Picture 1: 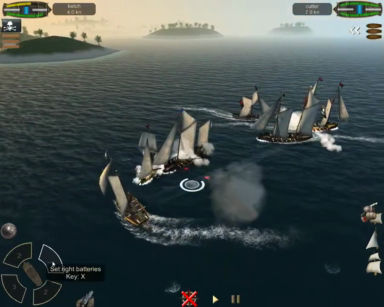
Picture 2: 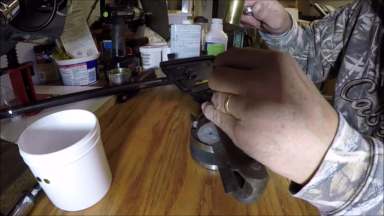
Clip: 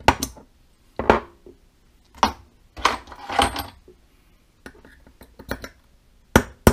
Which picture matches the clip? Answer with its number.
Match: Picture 2